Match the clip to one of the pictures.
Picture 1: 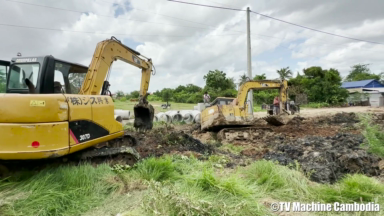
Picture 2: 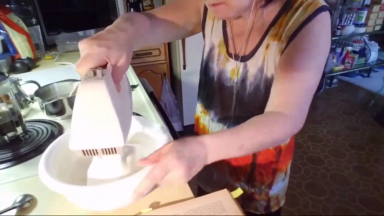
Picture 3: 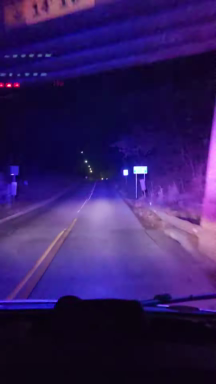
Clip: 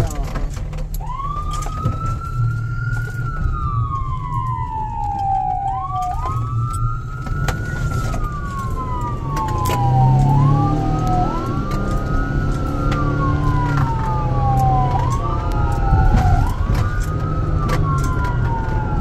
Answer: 3